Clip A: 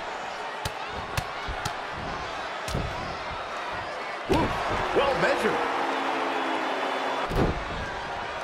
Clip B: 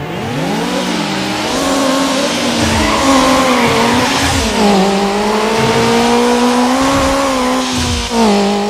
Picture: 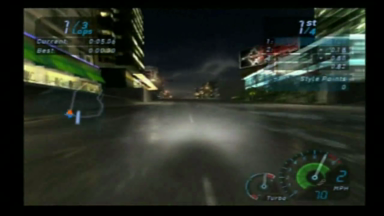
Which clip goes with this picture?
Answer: B